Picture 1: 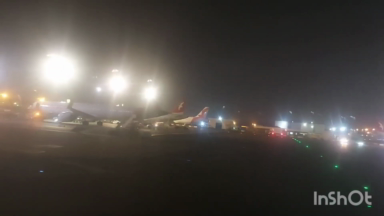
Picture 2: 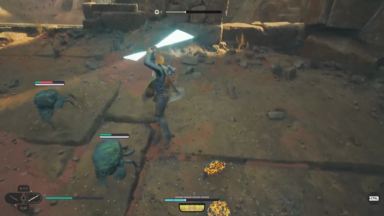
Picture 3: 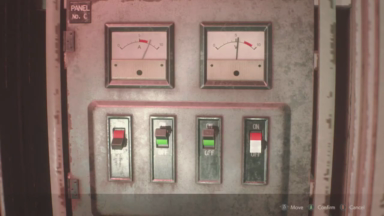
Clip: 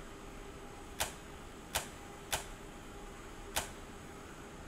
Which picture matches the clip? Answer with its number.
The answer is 3